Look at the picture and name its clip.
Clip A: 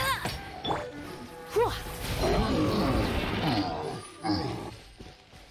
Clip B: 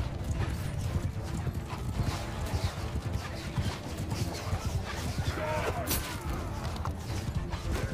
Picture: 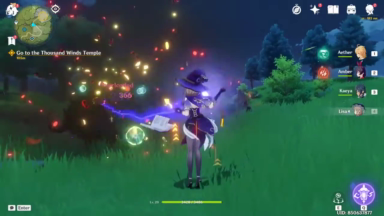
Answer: A